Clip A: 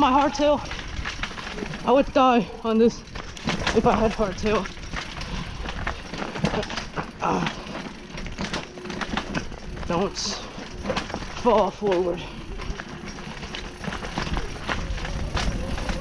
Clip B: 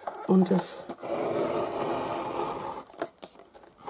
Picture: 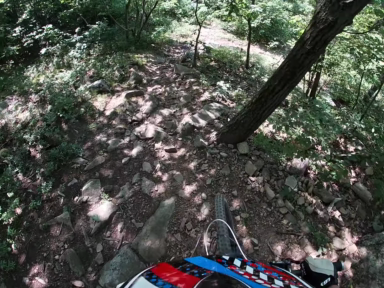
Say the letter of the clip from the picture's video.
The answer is A